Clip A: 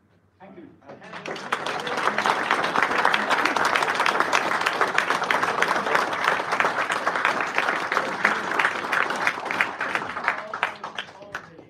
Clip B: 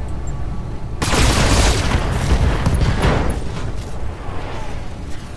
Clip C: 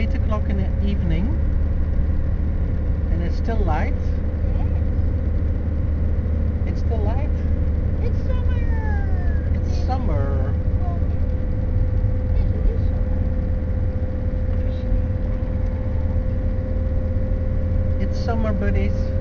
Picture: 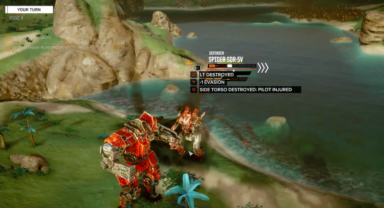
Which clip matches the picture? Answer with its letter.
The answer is B